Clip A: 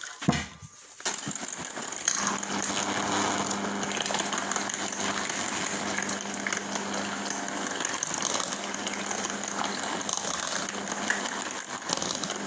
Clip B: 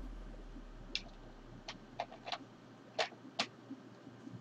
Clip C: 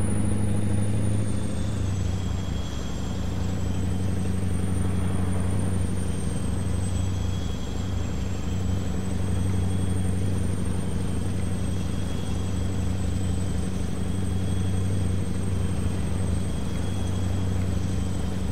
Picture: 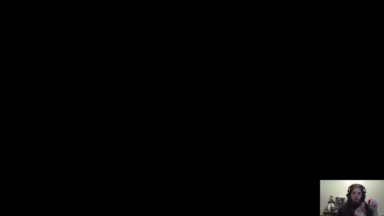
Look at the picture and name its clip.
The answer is B